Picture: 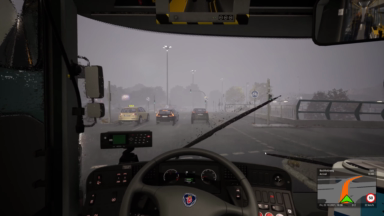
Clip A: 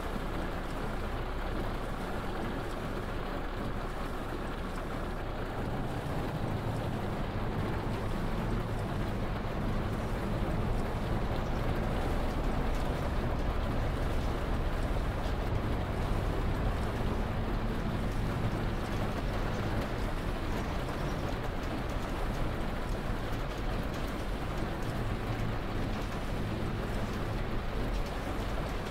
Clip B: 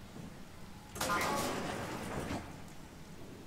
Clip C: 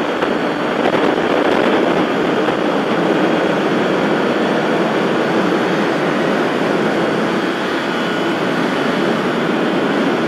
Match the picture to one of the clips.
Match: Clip A